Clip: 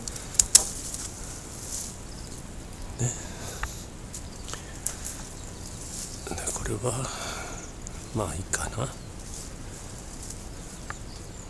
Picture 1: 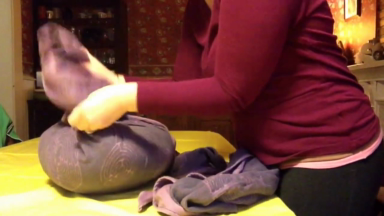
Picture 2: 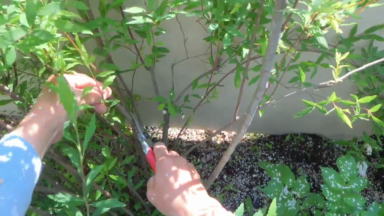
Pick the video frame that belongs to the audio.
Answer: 2